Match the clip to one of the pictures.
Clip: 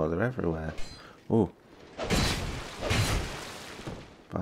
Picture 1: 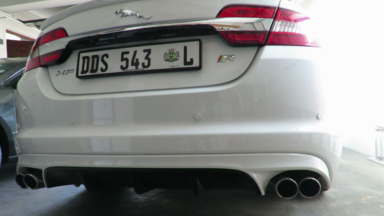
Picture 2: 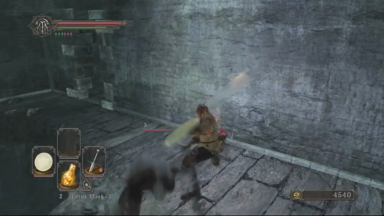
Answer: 2